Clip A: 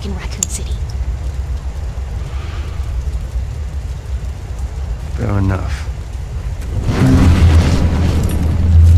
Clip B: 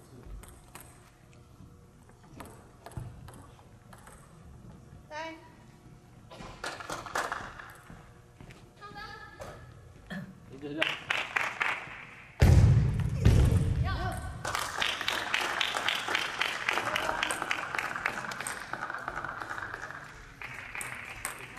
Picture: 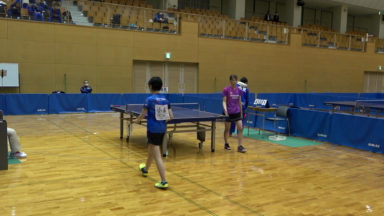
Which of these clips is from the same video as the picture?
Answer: B